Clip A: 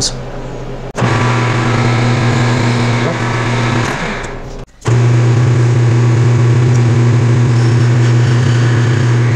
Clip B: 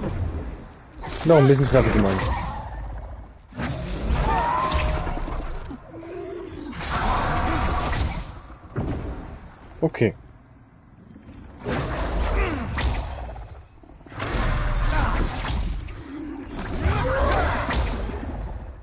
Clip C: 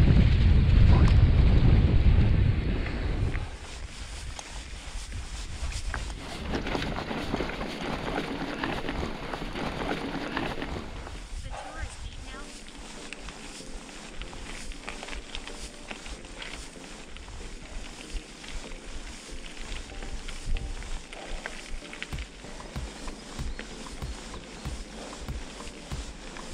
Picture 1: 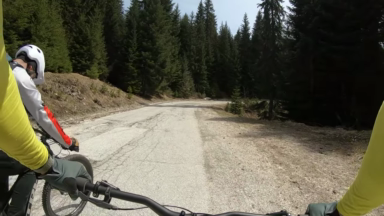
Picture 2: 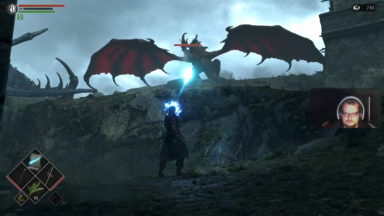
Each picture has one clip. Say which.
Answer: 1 C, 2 B